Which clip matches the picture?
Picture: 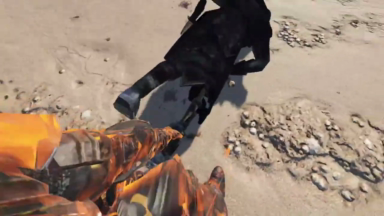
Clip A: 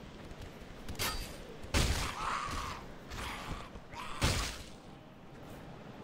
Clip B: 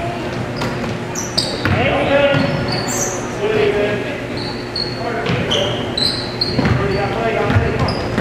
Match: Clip A